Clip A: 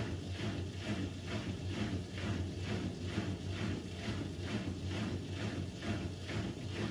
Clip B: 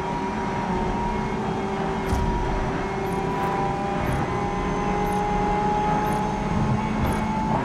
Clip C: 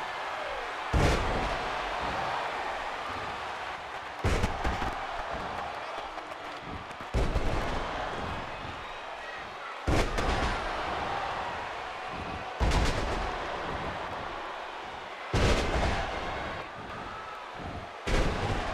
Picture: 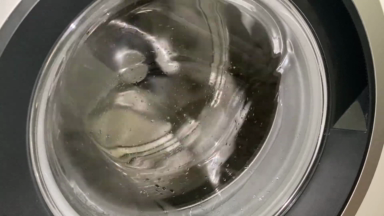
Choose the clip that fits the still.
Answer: A